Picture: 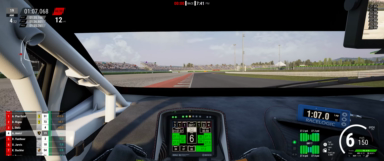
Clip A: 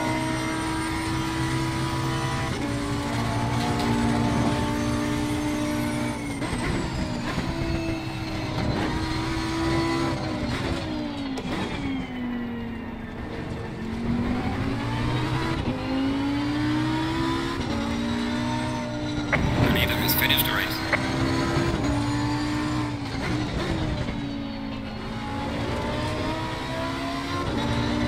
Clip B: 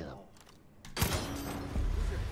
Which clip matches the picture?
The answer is A